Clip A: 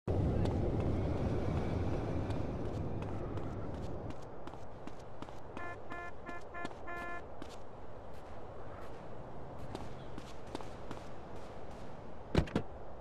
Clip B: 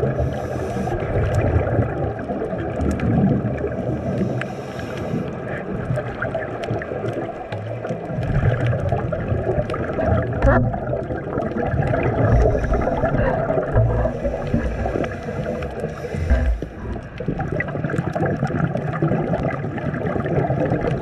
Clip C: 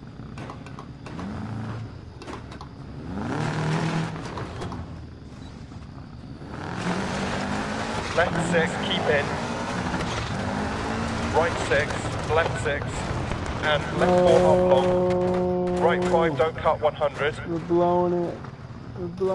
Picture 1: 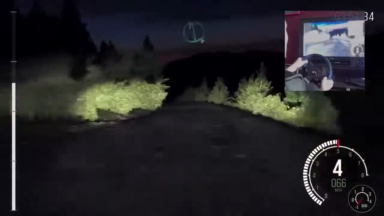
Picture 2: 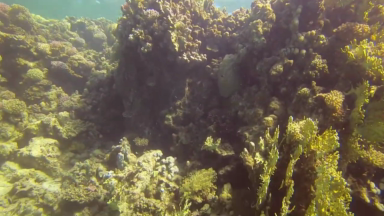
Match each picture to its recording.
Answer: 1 C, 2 B